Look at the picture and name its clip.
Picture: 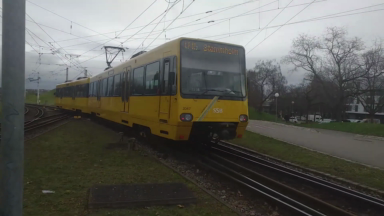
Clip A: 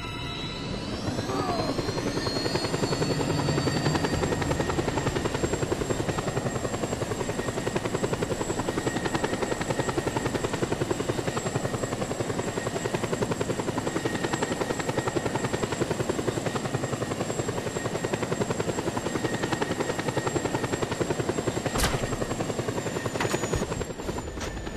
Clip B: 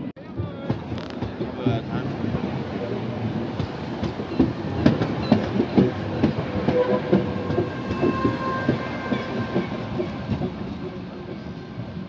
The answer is B